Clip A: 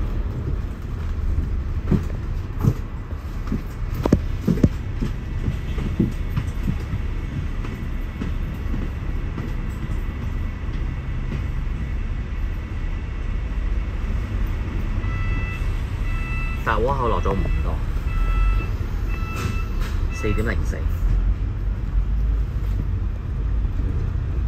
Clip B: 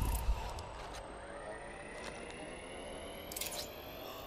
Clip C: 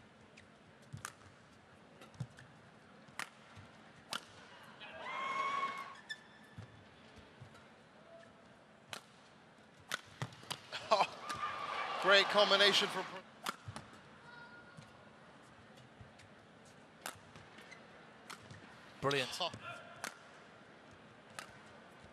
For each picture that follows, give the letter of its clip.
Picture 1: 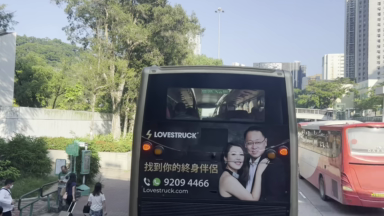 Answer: A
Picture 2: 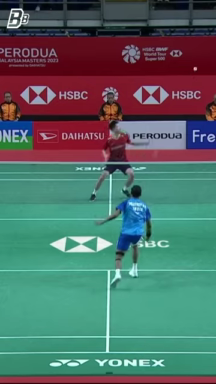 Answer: C